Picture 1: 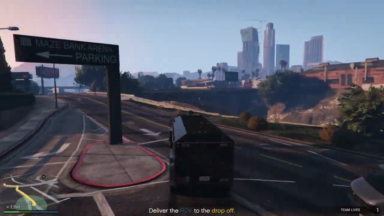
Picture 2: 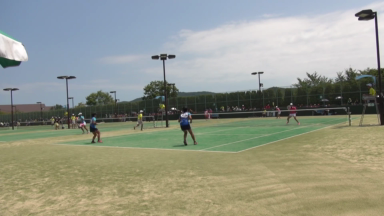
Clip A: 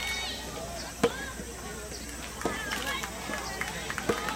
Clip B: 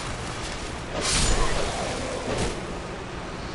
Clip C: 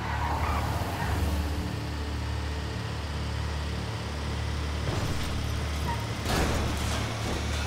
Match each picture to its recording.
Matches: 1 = C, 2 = A